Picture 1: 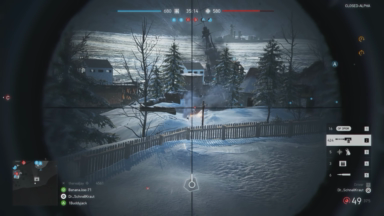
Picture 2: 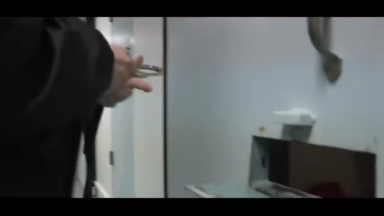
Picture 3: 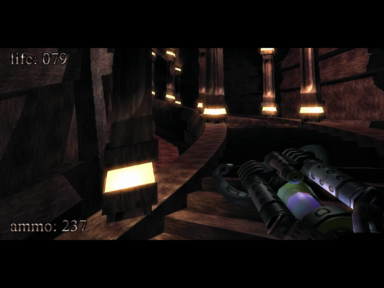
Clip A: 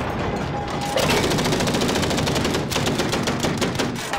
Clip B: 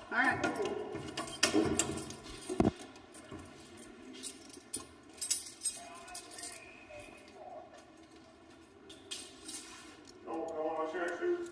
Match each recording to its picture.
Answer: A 1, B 2